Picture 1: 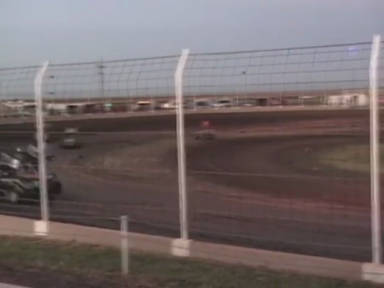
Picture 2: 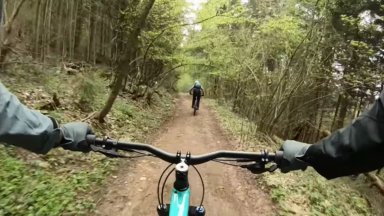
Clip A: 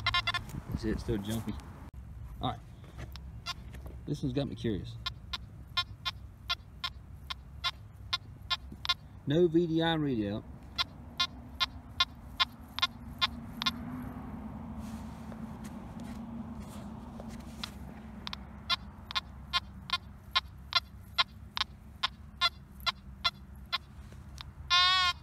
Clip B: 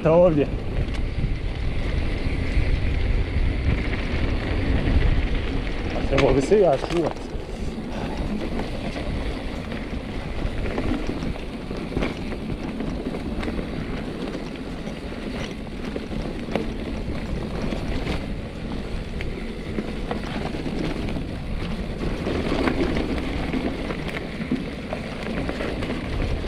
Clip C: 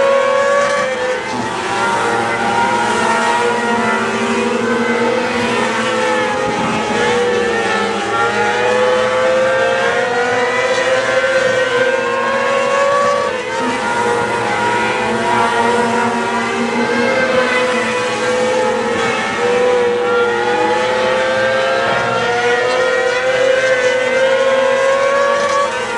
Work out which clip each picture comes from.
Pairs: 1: C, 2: B